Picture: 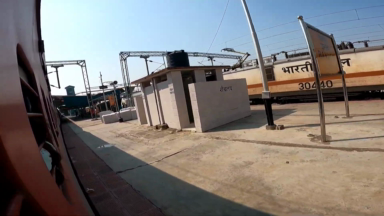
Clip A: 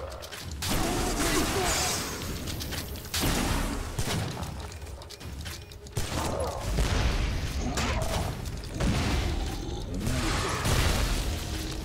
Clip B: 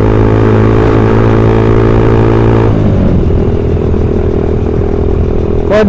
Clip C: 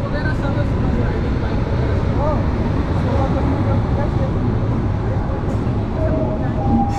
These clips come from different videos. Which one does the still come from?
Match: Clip C